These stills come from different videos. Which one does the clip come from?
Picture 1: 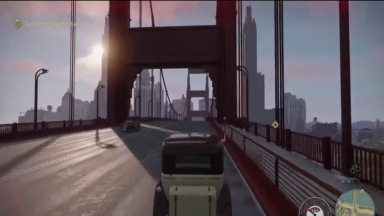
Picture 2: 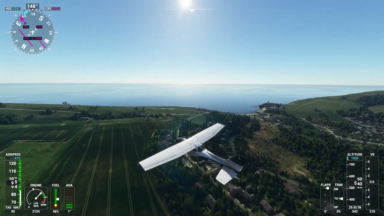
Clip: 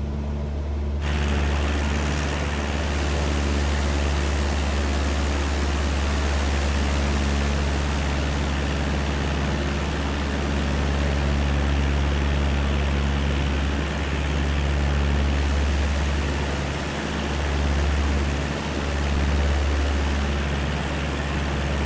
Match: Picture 2